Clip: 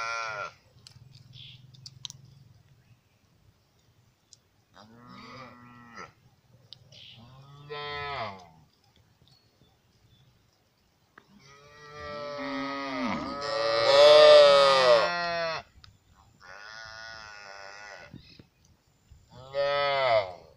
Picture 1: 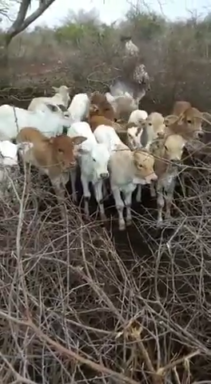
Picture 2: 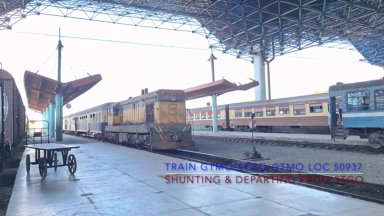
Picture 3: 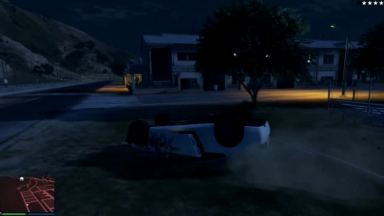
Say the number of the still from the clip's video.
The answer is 1